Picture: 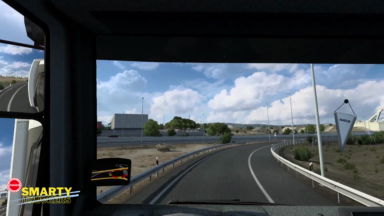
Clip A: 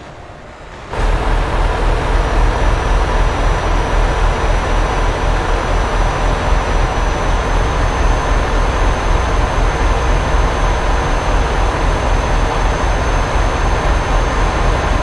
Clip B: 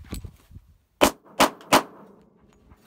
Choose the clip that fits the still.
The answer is A